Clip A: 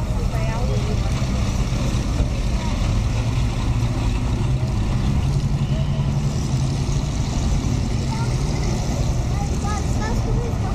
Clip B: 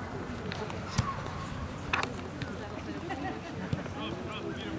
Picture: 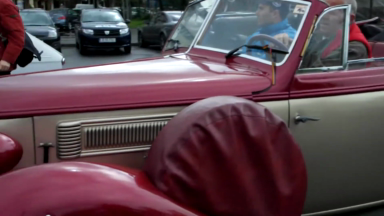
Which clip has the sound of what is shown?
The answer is A